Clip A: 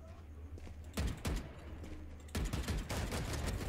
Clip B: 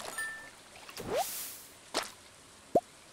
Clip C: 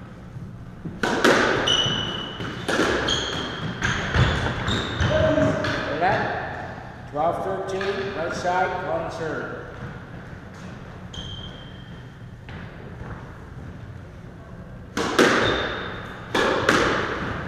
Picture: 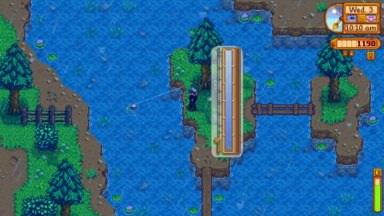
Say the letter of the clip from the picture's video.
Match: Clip B